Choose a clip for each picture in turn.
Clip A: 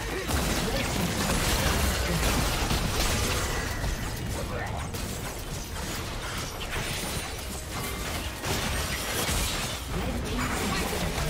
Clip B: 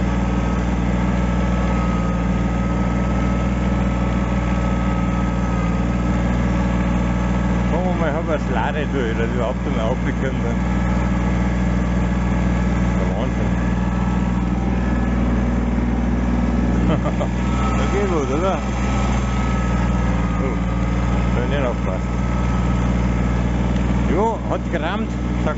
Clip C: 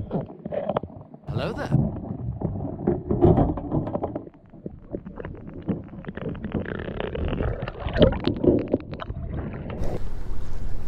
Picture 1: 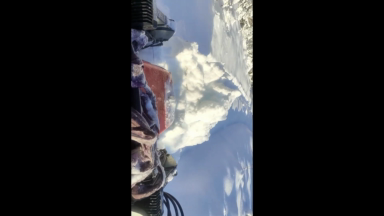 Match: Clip B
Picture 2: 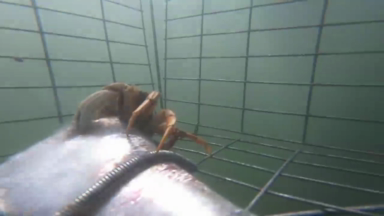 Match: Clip C